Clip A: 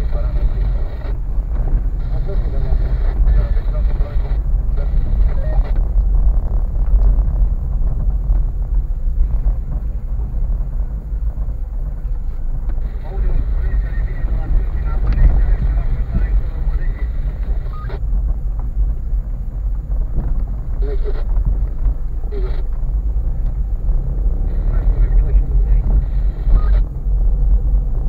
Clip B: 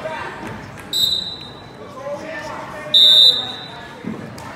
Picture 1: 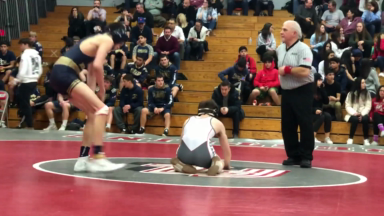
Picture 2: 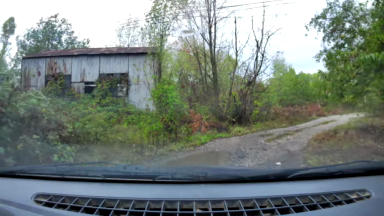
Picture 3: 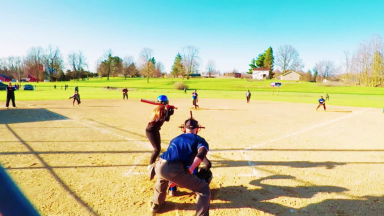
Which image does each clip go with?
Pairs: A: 2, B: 1